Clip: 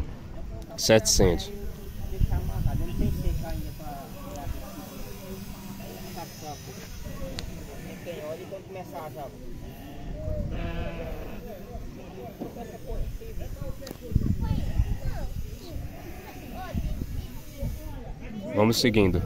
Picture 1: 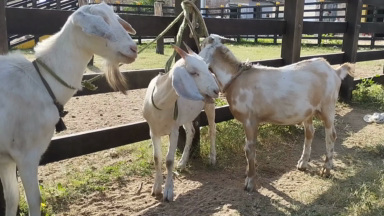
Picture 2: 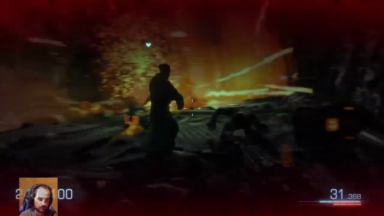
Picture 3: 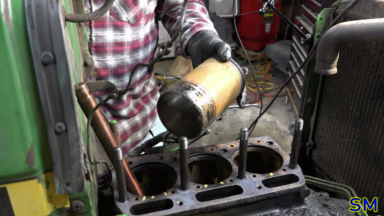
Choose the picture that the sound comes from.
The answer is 1